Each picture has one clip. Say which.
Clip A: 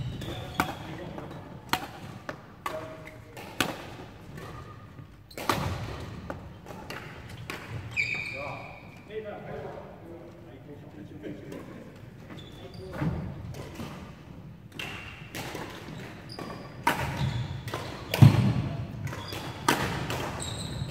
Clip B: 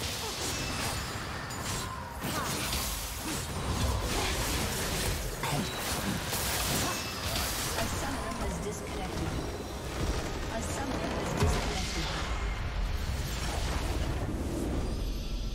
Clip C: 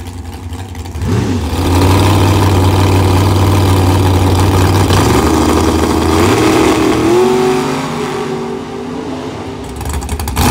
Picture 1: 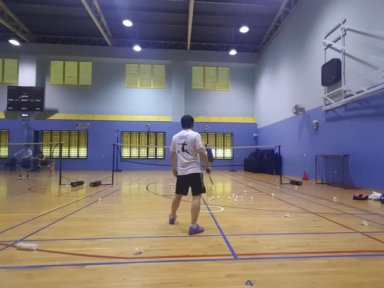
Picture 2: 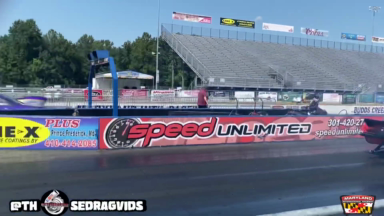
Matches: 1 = A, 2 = C